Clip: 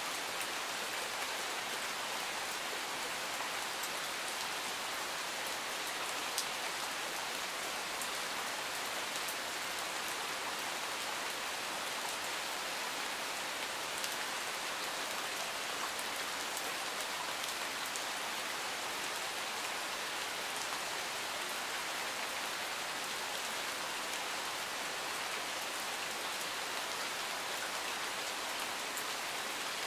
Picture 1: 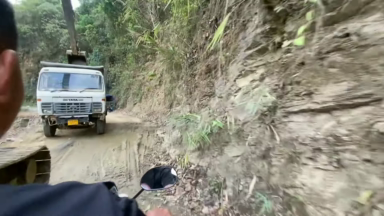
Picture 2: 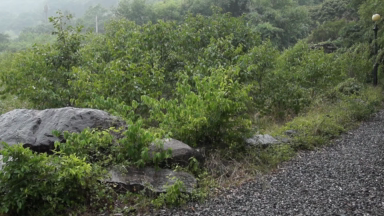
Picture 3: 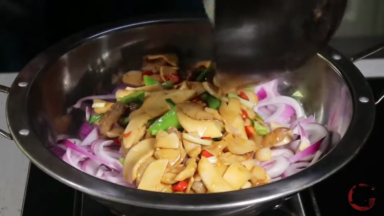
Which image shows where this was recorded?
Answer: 2